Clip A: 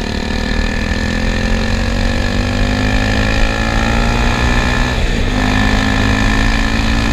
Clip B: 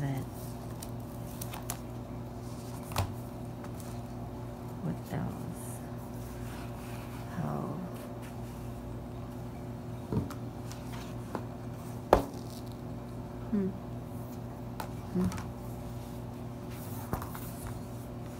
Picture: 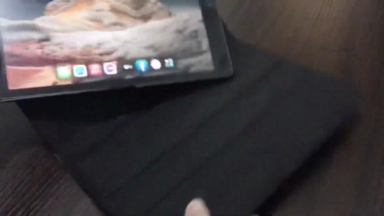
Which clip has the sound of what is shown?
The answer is B